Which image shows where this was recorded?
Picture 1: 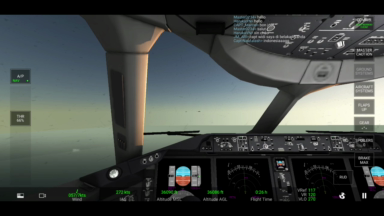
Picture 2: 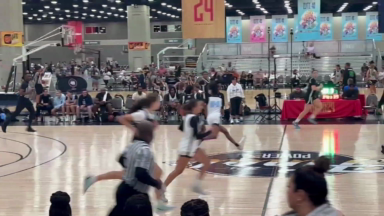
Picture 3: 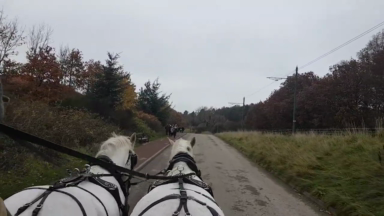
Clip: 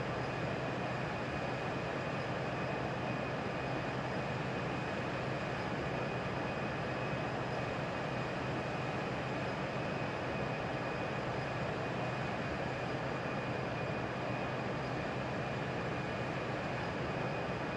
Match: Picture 1